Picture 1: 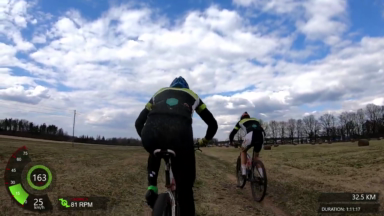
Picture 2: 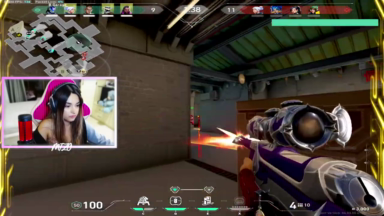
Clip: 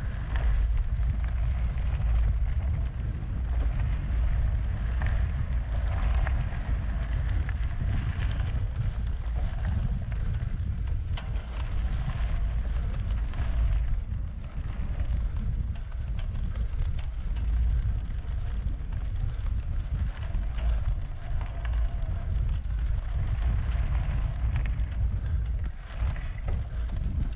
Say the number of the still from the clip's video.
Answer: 1